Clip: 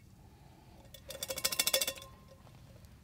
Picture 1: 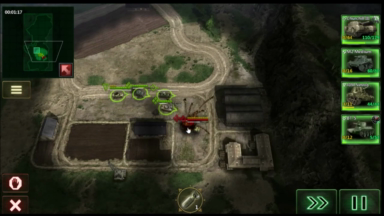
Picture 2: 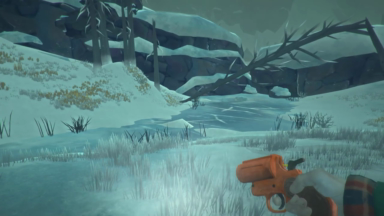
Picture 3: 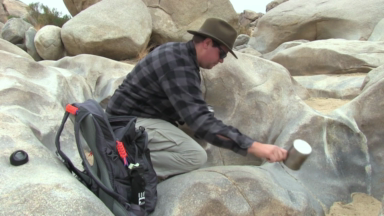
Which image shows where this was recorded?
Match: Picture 3